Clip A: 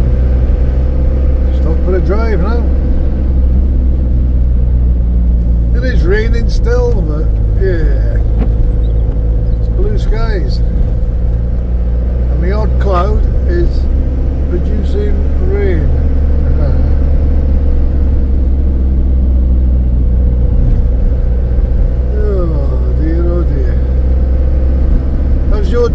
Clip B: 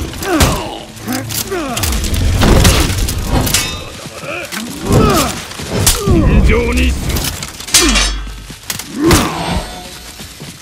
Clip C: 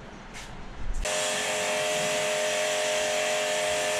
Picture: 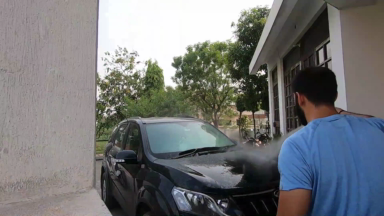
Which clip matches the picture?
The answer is C